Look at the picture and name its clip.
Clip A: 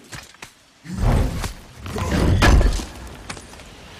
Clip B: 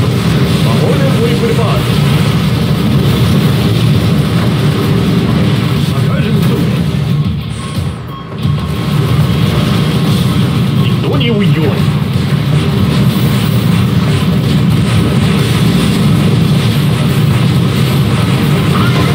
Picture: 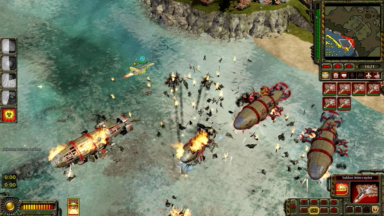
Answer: B